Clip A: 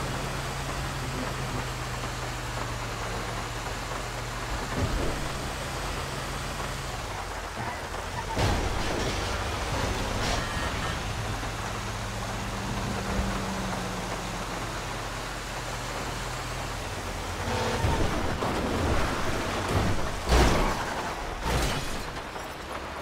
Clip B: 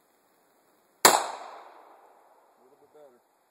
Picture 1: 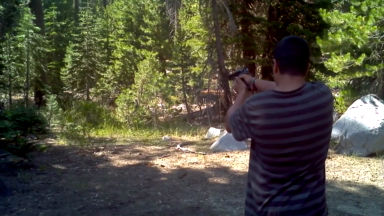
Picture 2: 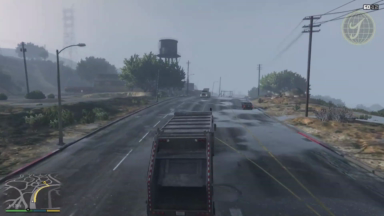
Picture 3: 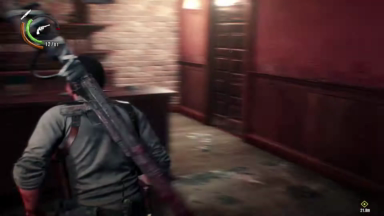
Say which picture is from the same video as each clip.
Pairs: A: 2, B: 1